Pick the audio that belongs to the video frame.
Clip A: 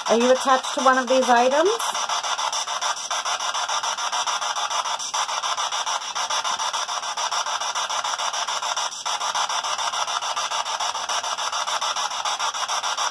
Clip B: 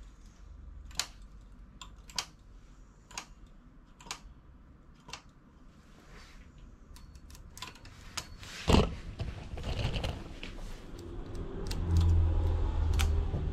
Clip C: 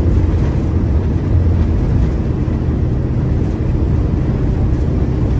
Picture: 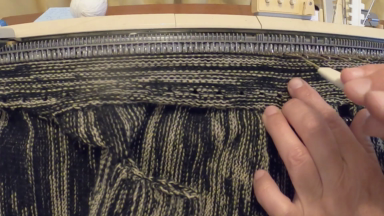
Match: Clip B